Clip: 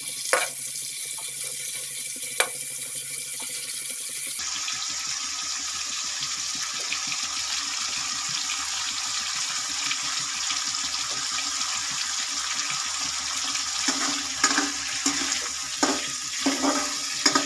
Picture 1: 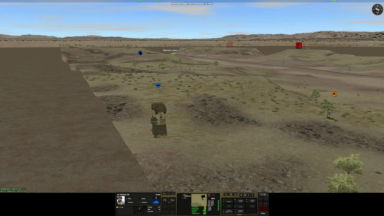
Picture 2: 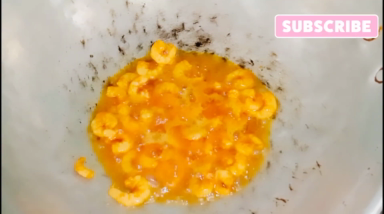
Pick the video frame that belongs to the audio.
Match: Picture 2